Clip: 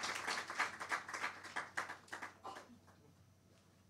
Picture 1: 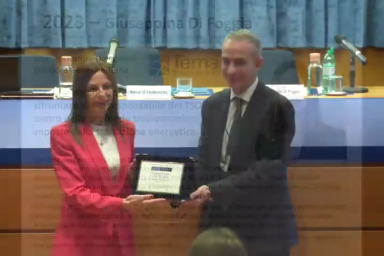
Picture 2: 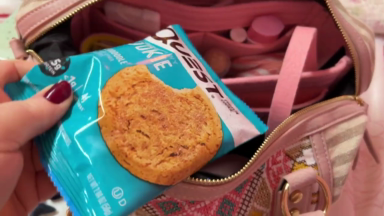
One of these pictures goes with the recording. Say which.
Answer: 1